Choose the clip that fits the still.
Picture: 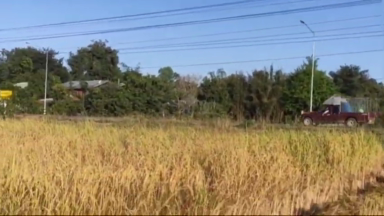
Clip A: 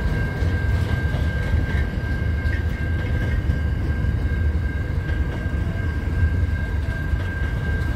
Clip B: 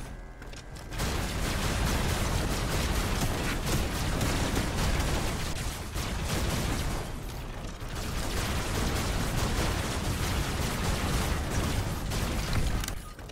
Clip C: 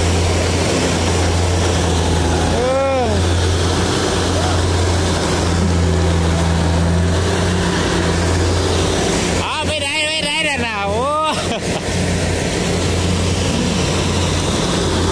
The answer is C